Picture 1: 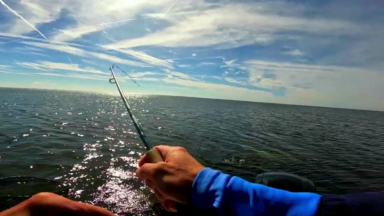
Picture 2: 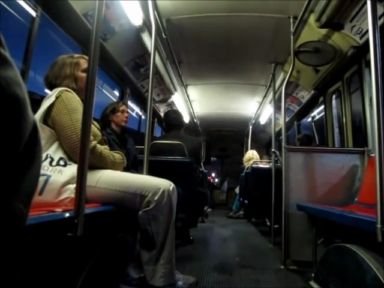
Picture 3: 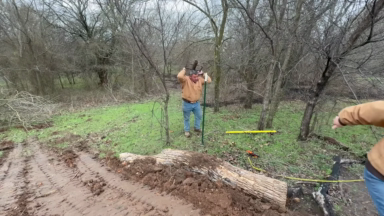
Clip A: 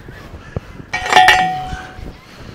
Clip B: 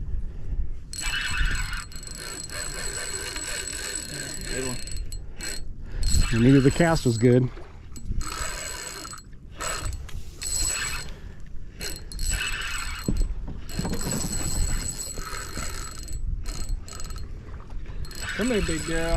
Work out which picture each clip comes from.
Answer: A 3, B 1